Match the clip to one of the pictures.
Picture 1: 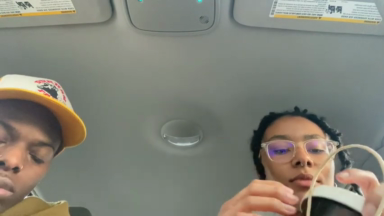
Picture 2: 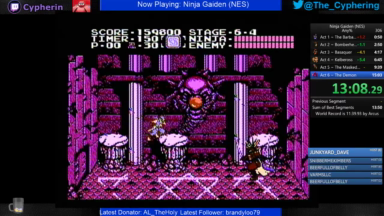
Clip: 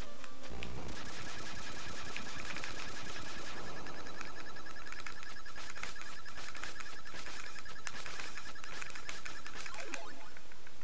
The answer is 2